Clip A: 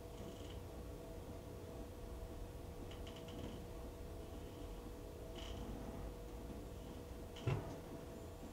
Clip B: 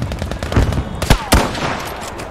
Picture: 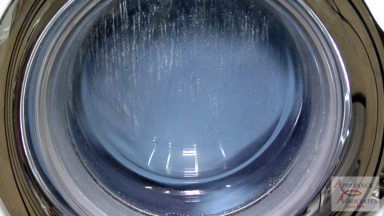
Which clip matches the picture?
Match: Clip A